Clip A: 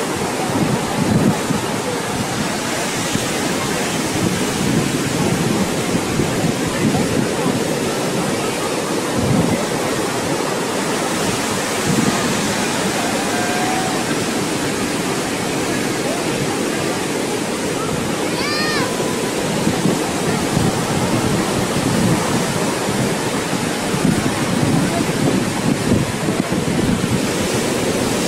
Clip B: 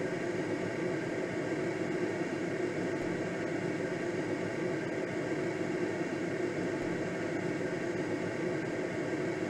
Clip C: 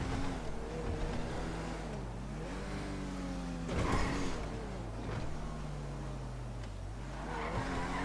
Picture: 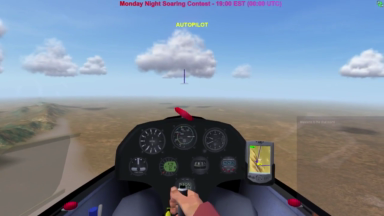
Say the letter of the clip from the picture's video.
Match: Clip B